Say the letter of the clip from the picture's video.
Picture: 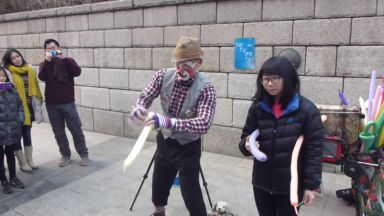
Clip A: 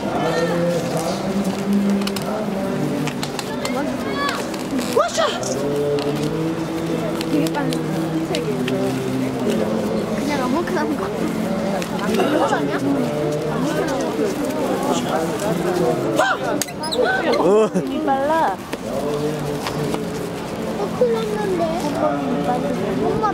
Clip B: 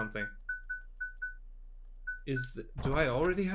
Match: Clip A